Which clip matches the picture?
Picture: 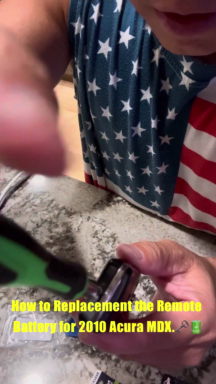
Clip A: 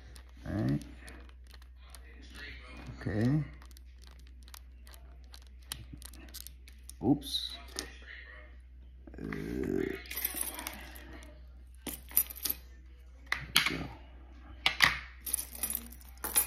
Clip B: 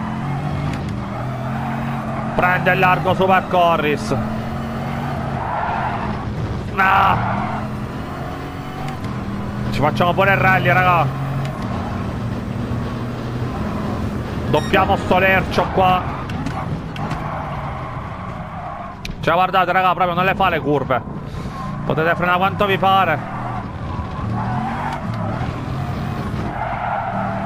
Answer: A